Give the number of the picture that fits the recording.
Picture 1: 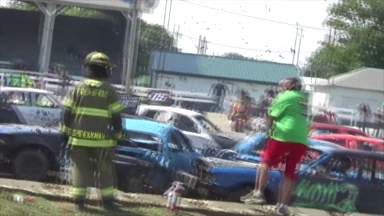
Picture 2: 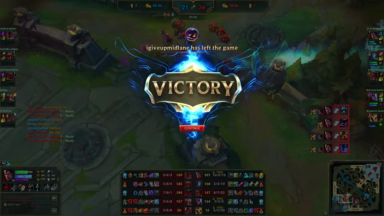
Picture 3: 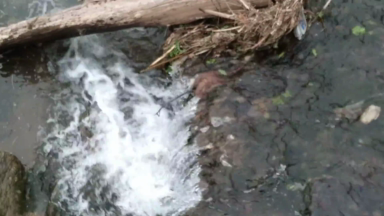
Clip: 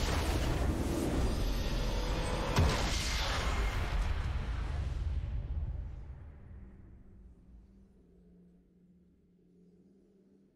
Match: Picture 2